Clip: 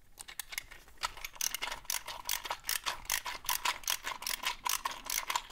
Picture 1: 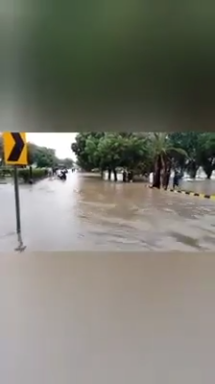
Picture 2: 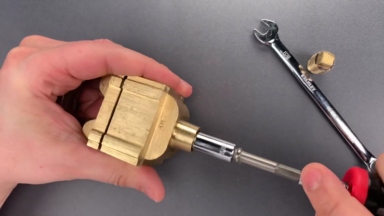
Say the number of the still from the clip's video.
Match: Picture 2